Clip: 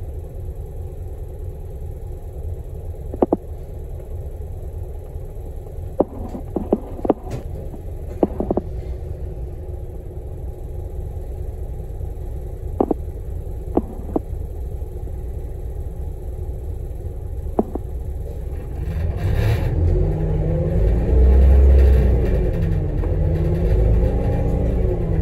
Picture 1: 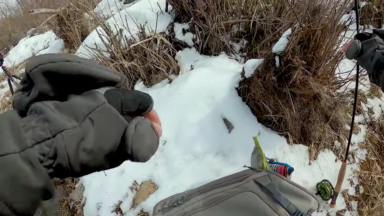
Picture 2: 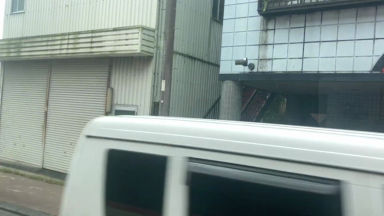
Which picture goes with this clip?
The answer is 2